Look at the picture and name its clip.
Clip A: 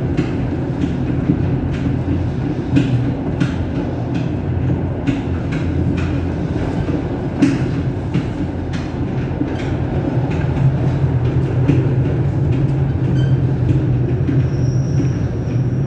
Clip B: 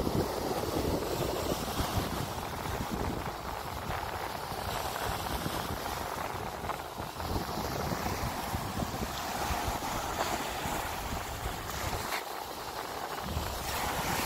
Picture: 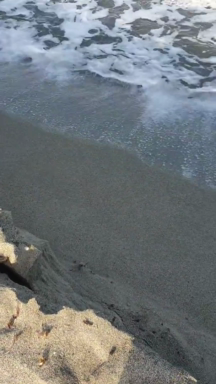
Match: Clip B